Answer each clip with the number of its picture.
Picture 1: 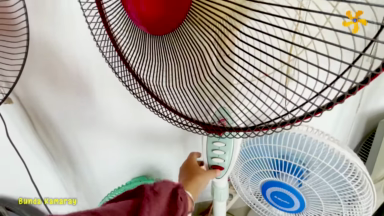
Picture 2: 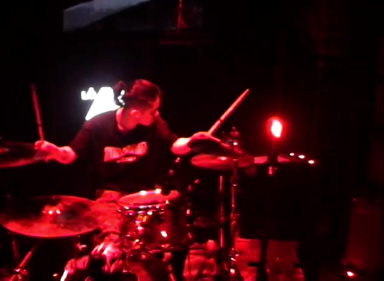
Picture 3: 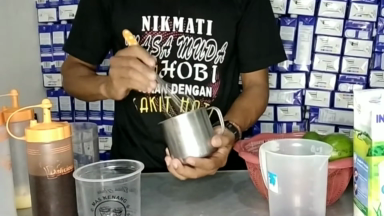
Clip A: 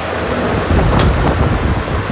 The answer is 1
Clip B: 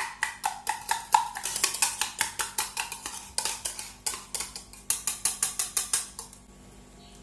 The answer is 3